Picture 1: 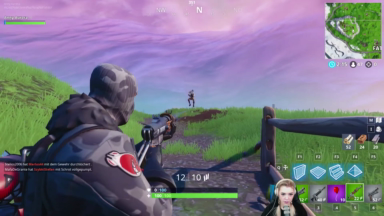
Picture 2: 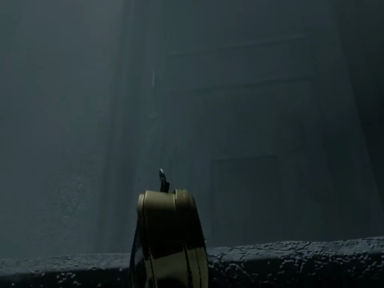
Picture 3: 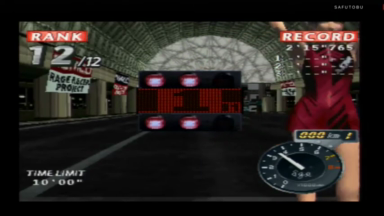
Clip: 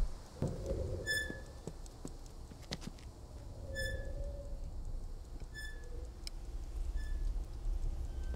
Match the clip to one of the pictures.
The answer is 2